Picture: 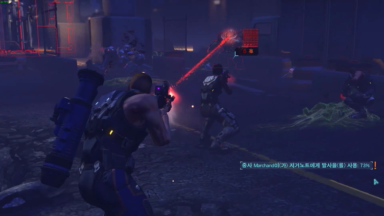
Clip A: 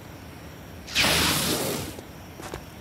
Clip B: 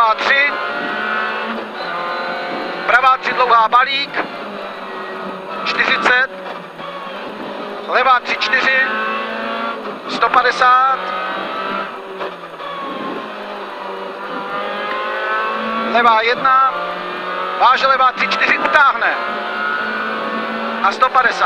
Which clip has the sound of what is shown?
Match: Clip A